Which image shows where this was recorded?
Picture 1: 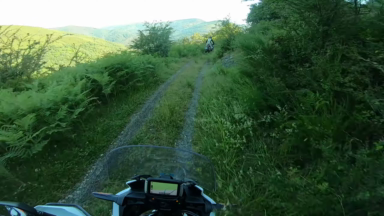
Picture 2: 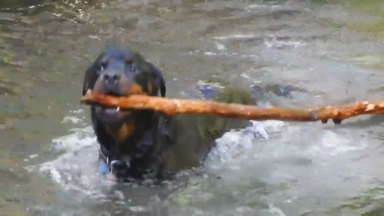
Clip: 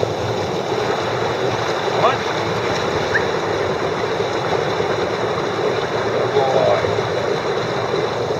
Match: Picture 2